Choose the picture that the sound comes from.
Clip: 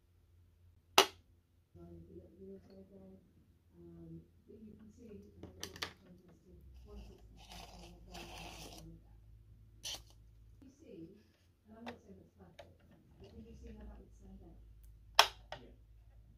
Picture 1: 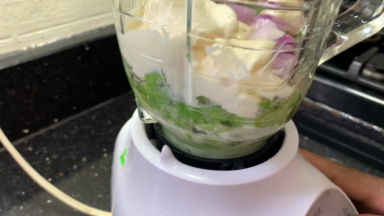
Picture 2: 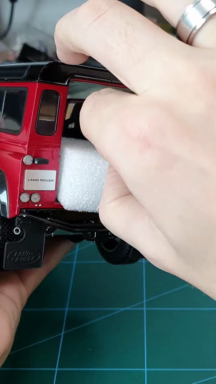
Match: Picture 2